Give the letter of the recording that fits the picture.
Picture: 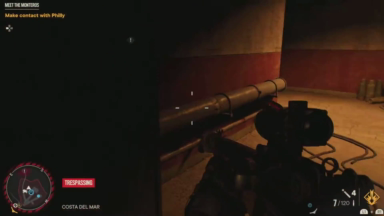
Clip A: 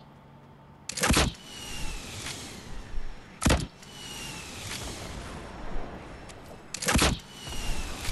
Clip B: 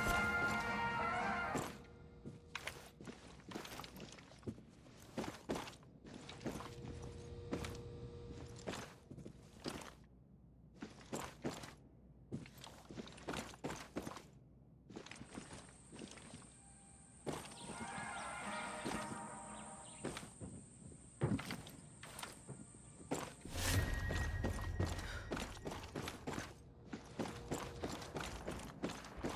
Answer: B